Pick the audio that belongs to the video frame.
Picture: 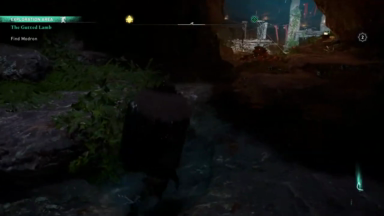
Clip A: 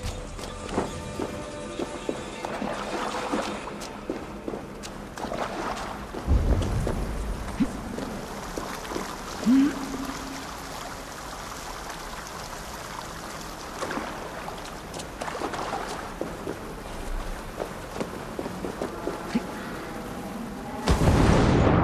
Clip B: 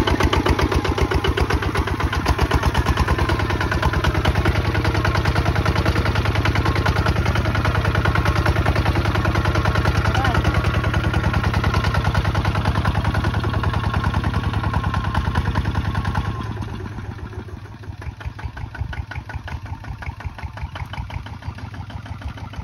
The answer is A